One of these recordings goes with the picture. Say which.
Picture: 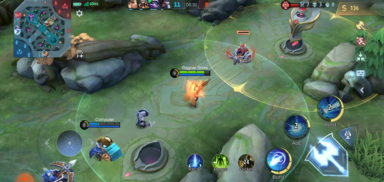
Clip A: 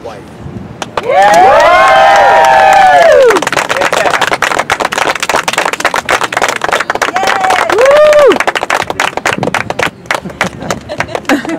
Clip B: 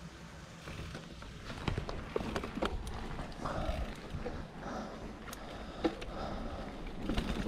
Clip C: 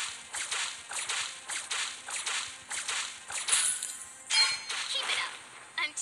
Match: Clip C